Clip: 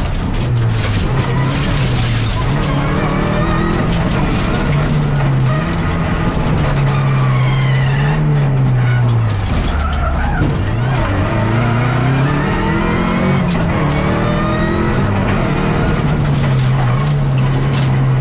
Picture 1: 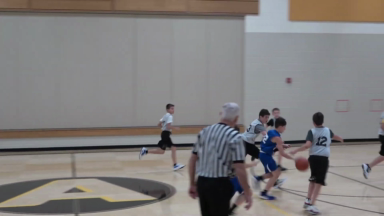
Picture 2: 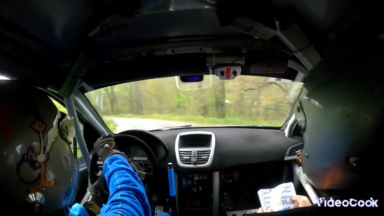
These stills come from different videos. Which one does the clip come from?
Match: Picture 2